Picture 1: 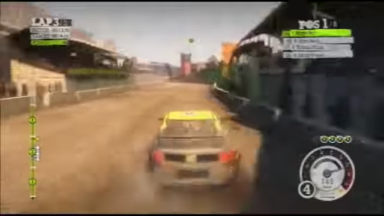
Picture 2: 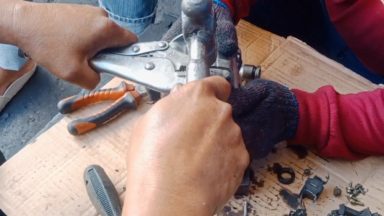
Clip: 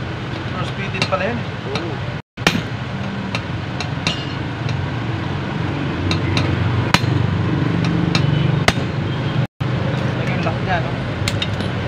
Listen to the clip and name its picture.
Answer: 2